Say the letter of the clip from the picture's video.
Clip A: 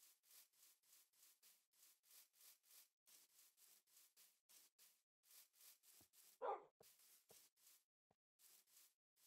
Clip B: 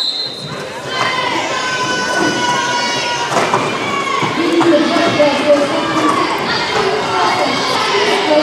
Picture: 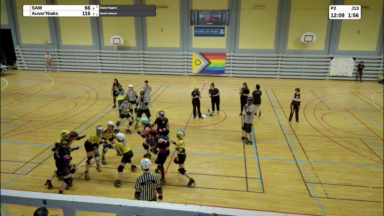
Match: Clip B